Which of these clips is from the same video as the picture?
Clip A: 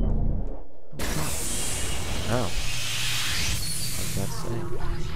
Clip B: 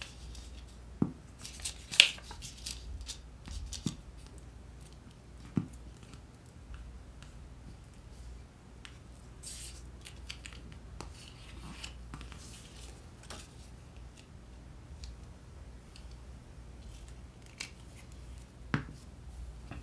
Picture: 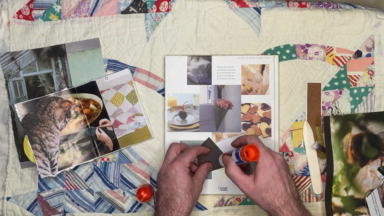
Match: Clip B